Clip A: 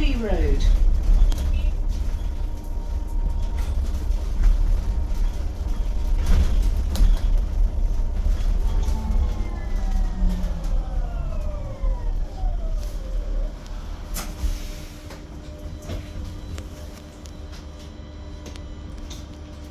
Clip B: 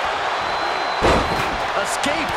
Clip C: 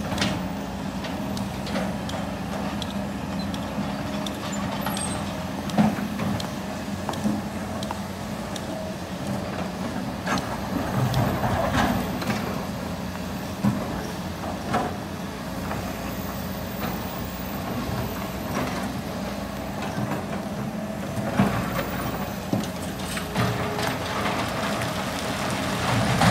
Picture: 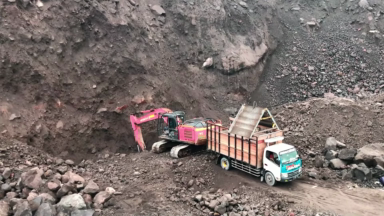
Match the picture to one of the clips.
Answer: C